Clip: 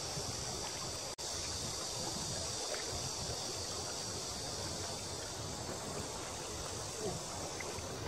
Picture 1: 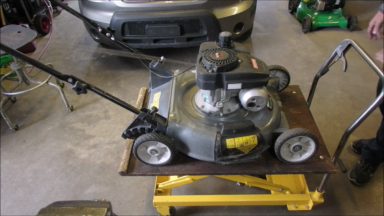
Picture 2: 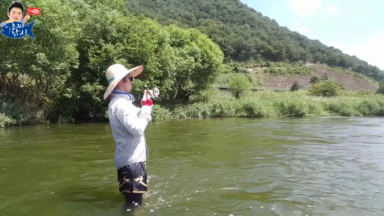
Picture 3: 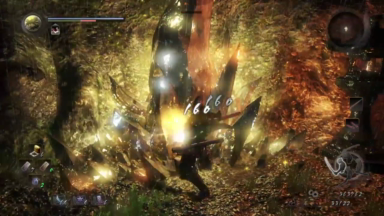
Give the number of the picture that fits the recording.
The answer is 2